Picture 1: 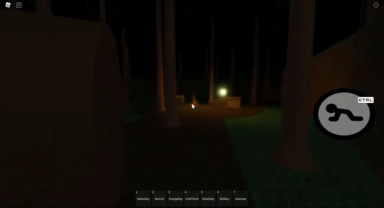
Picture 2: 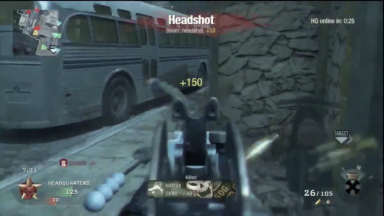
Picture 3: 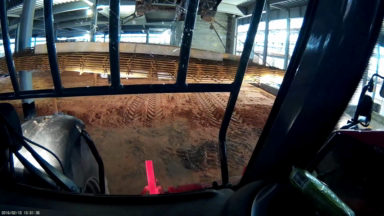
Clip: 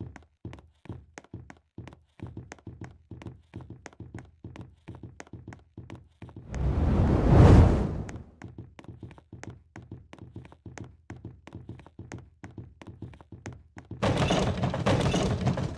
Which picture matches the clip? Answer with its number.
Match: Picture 1